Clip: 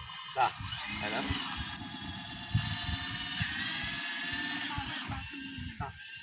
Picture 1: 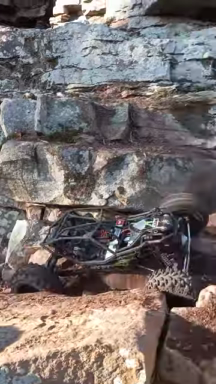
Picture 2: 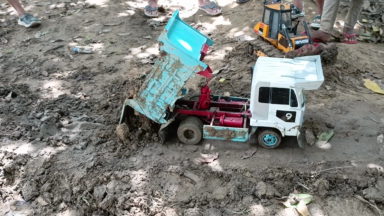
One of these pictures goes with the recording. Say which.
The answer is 2